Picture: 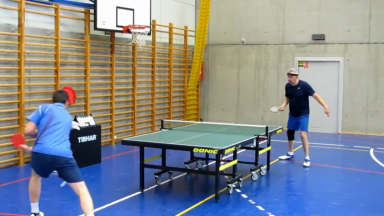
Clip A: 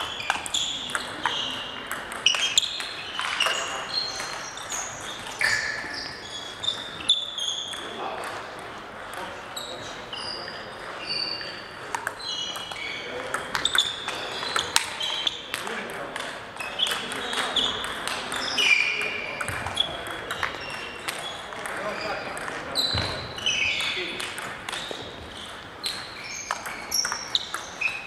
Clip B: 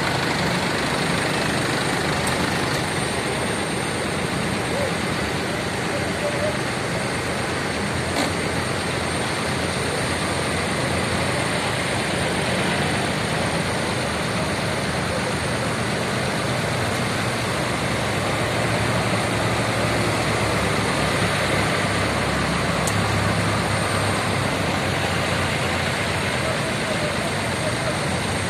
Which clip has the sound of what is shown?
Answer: A